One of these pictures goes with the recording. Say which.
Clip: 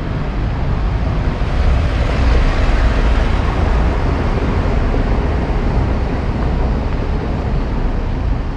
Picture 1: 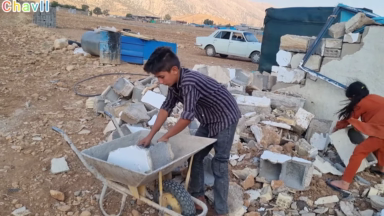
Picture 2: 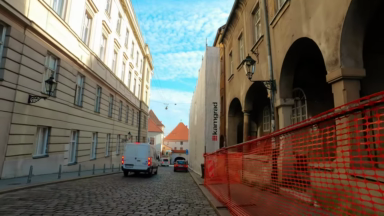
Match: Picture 2